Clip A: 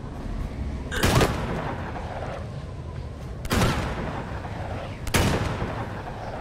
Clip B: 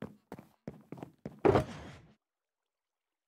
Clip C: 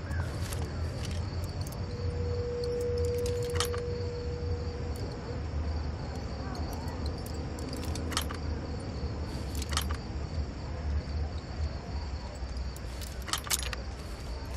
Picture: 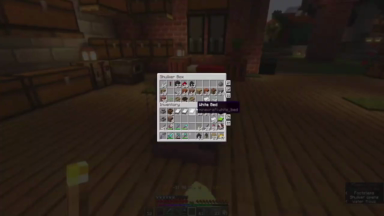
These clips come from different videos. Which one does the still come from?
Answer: B